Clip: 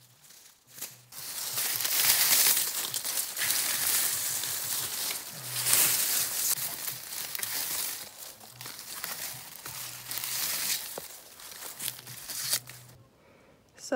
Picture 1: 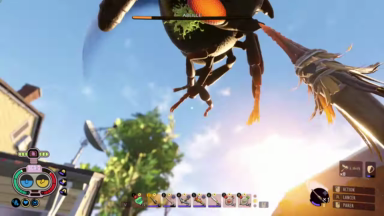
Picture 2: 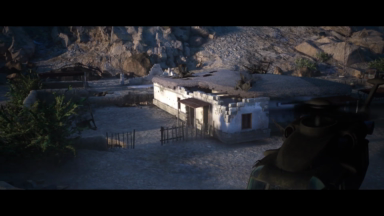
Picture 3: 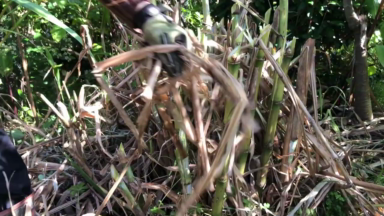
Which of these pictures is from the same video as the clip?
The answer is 3